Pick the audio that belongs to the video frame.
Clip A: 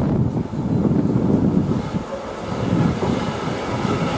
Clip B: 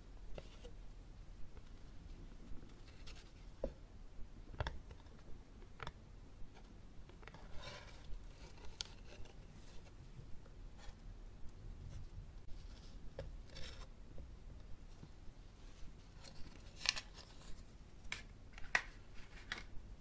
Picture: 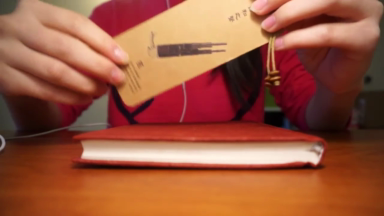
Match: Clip B